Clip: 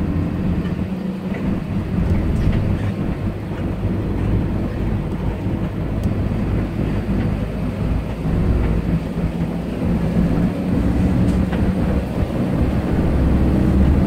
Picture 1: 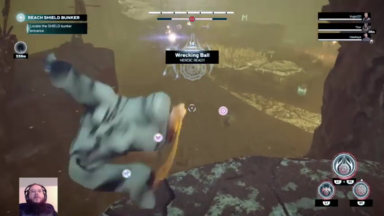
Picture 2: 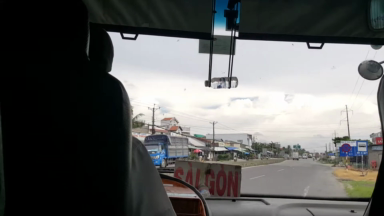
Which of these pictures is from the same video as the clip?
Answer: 2